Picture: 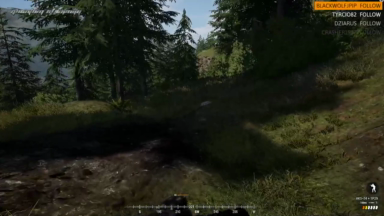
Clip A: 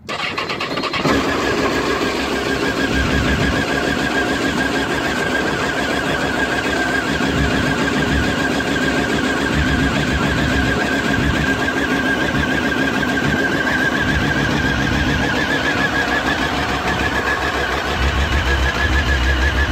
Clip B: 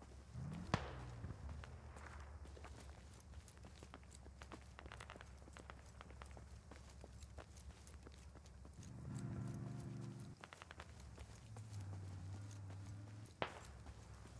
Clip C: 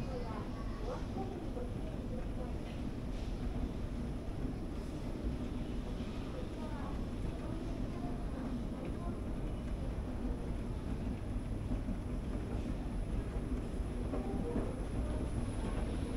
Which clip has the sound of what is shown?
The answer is B